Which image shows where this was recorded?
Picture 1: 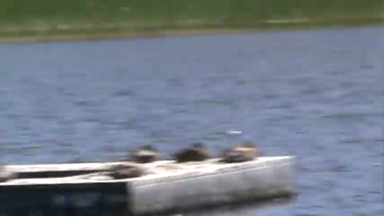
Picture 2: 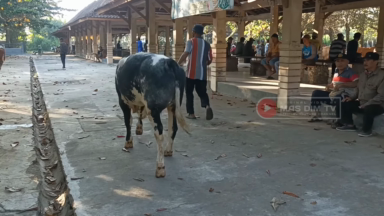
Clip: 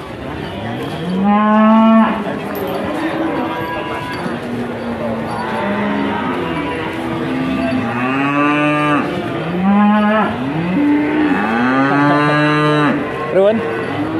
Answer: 2